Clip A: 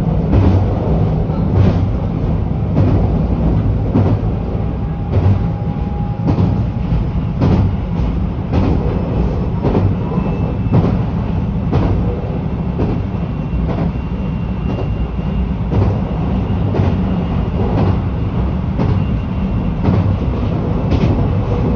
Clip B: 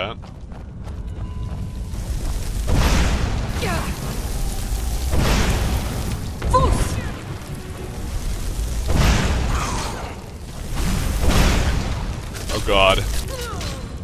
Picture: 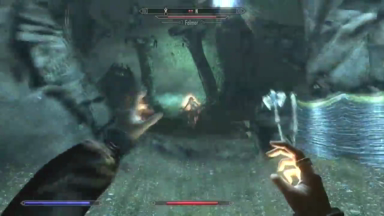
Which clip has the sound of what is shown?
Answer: B